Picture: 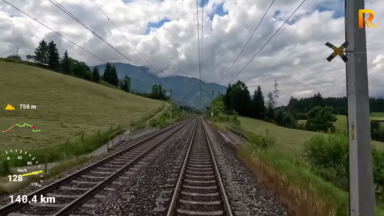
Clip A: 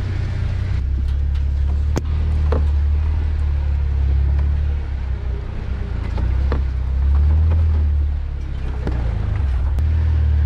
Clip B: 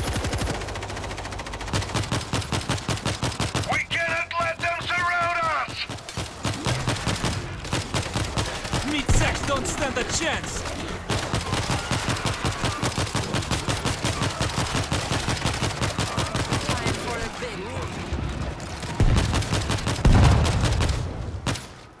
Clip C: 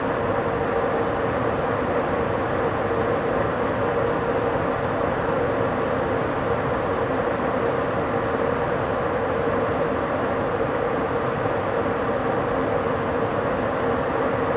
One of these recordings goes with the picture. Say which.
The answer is C